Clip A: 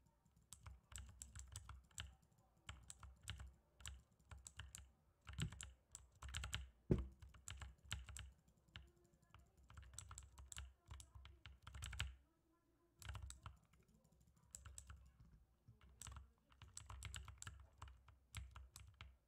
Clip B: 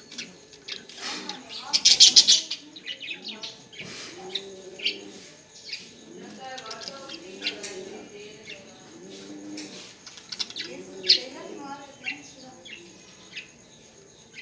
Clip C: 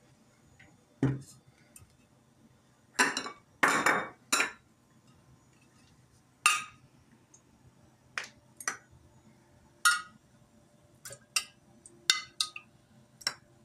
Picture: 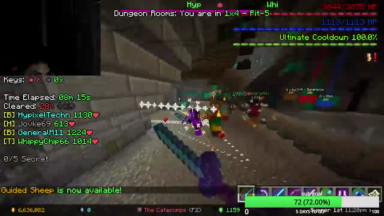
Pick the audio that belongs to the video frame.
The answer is A